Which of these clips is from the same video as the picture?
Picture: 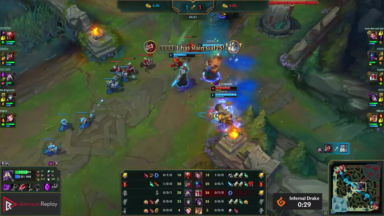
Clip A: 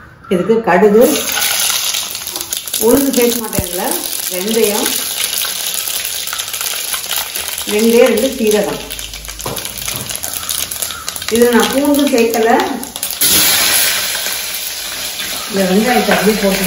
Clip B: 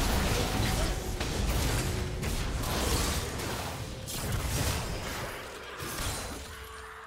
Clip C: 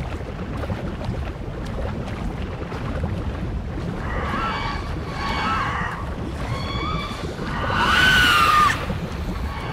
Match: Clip B